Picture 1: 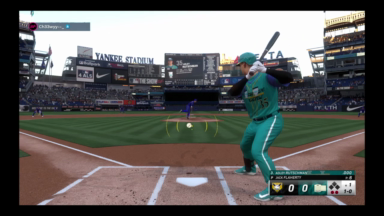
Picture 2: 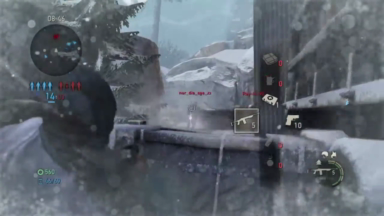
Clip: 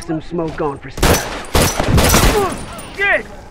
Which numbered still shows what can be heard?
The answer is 2